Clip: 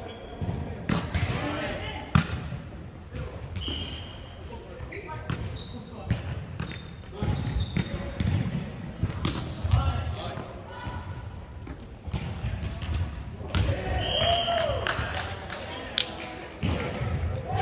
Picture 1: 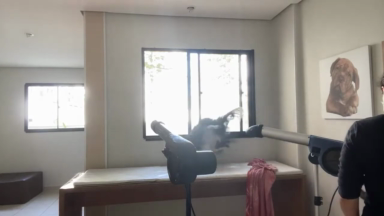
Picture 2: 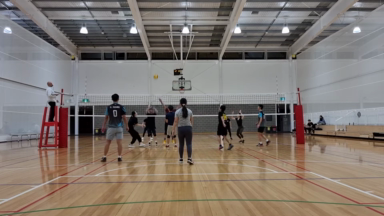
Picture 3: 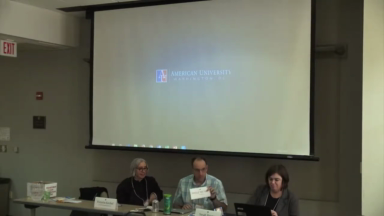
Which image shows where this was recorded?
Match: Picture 2